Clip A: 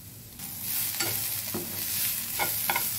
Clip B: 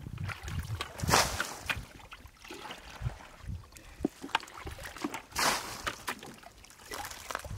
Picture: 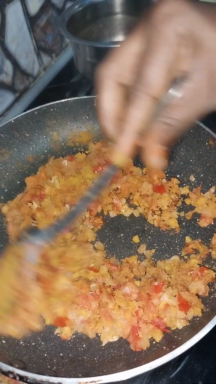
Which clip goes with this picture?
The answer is A